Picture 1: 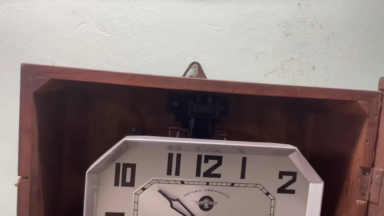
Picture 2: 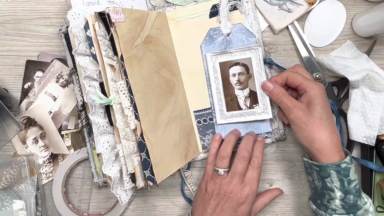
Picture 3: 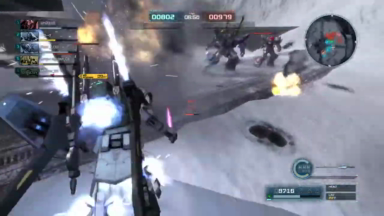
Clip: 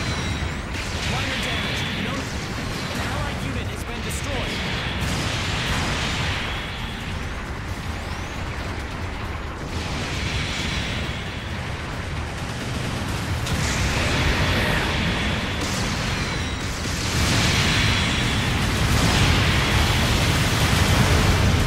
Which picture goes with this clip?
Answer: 3